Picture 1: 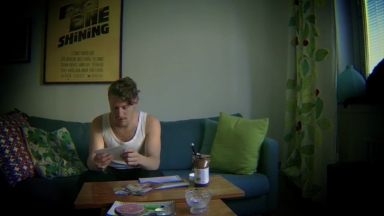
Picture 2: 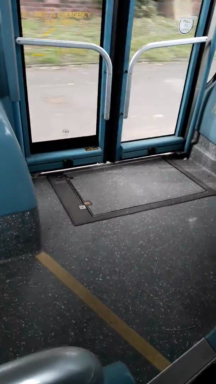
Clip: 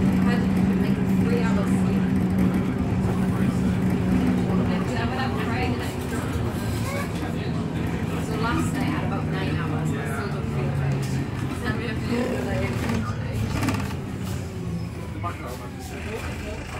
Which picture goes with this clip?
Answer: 2